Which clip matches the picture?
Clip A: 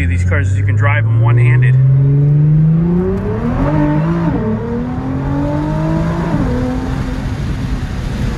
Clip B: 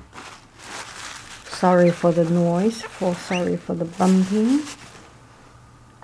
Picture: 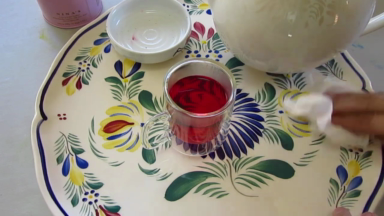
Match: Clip B